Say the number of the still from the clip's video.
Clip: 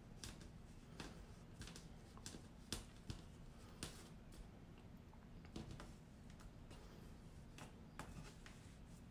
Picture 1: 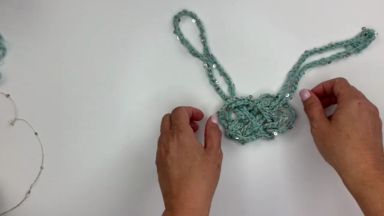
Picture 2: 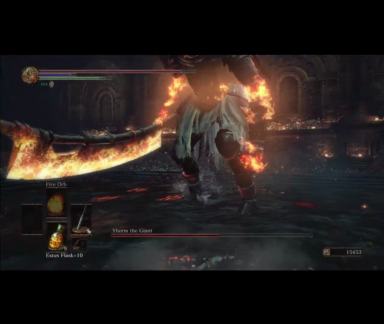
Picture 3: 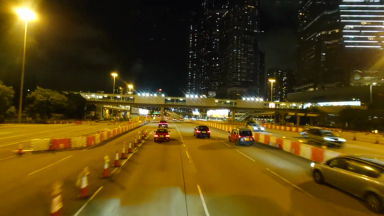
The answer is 1